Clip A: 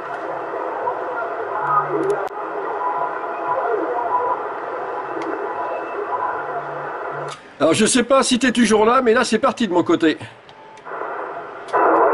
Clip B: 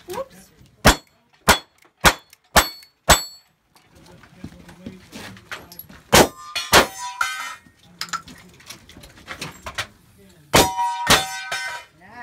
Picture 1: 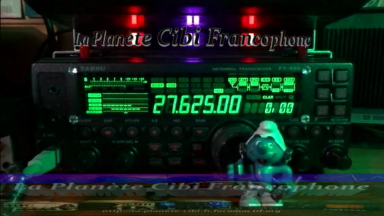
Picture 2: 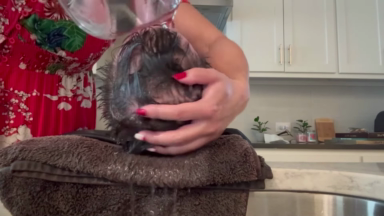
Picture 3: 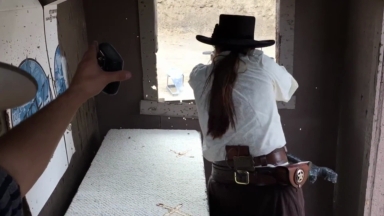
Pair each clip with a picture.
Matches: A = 1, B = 3